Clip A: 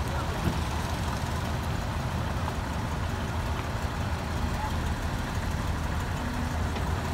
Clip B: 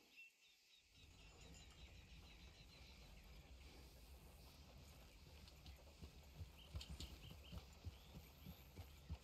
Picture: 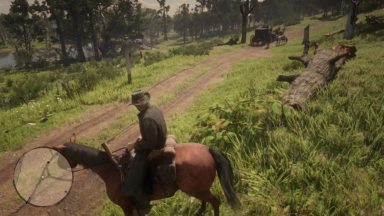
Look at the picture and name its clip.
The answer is B